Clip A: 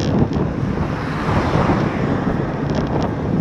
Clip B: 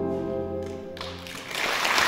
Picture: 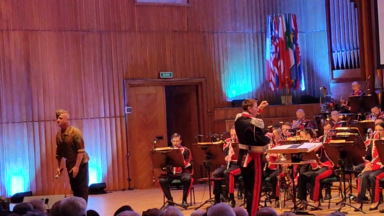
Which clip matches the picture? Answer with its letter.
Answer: B